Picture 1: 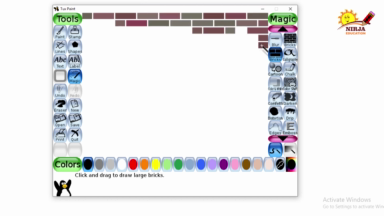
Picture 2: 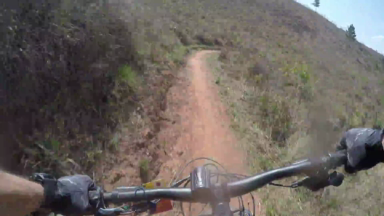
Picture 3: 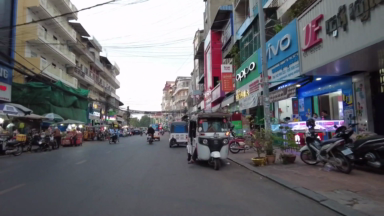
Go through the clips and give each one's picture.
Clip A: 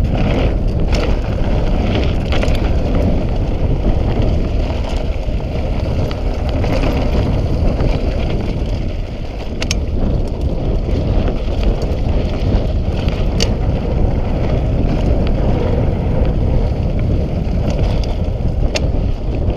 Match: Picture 2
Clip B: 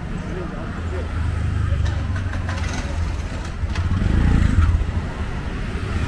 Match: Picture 3